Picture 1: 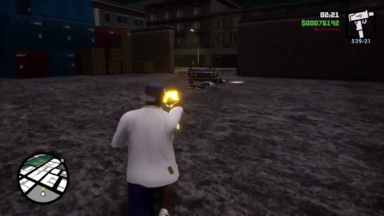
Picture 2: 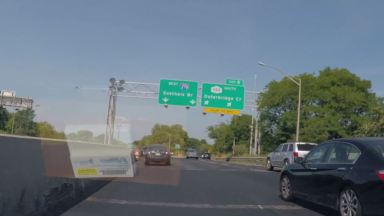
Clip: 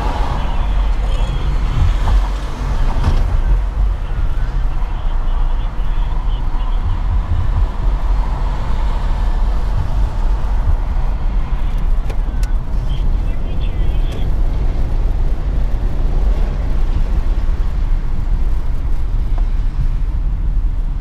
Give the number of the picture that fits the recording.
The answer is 2